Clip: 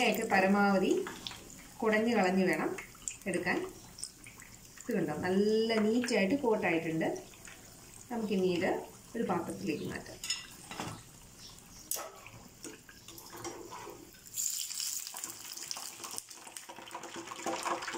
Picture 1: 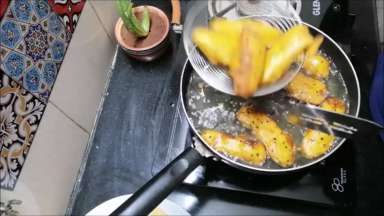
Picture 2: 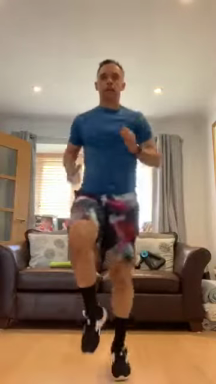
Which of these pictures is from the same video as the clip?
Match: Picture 1